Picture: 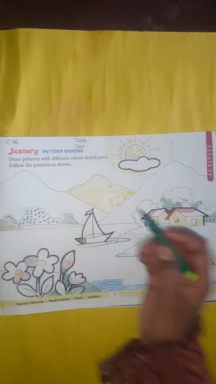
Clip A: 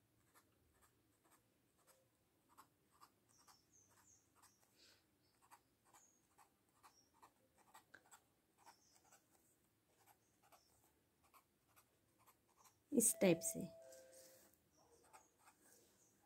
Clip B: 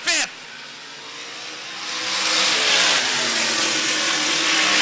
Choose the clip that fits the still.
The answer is A